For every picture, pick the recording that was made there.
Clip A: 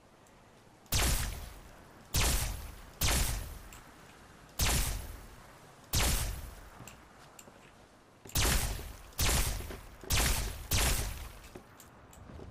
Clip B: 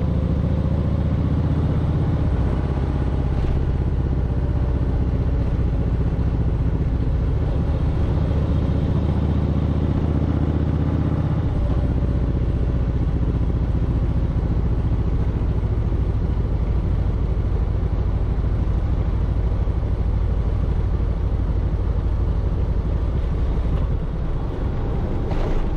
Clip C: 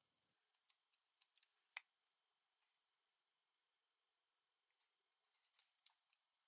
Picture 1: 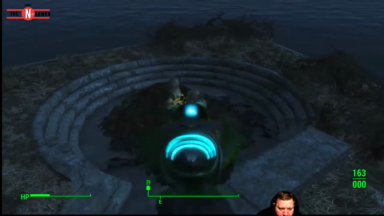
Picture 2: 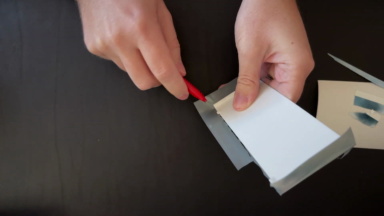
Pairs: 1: A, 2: C